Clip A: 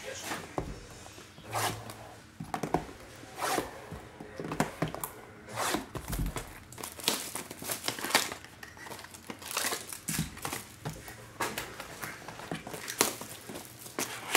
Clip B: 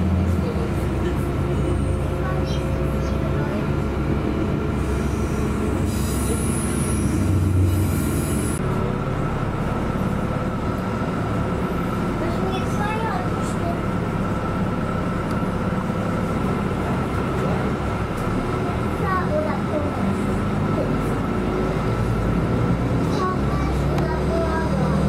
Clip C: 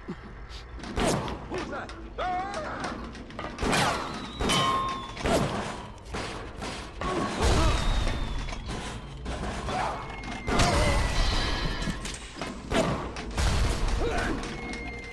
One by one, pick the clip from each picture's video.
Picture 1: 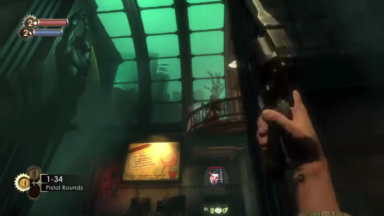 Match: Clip C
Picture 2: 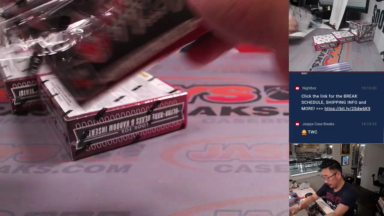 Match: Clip A